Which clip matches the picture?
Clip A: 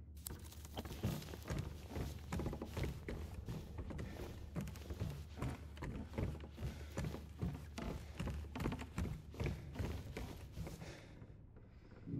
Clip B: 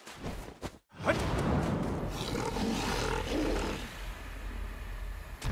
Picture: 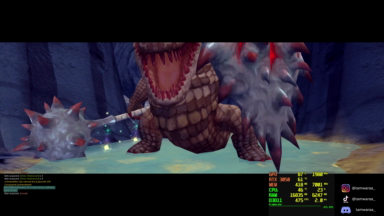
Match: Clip B